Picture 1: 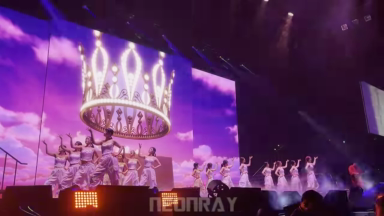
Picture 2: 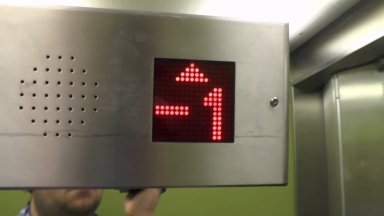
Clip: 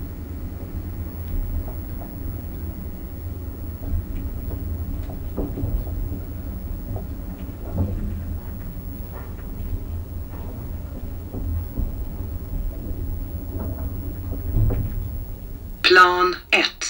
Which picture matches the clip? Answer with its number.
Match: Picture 2